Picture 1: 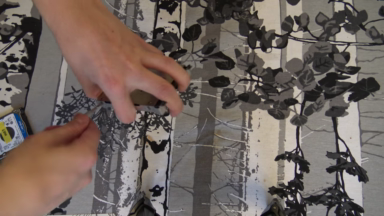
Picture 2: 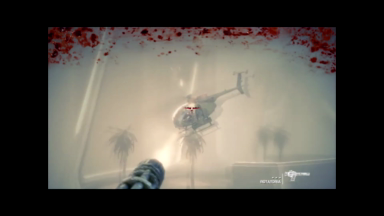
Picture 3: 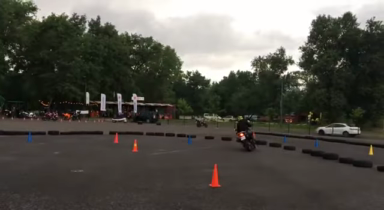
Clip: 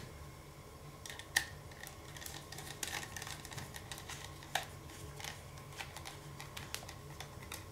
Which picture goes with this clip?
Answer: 1